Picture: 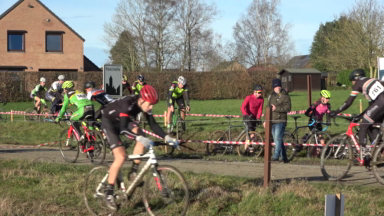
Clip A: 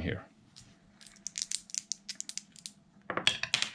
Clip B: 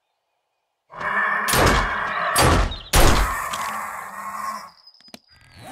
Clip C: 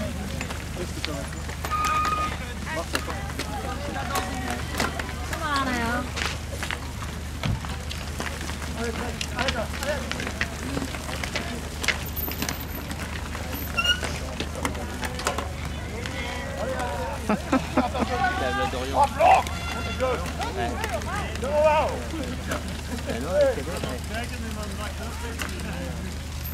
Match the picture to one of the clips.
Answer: C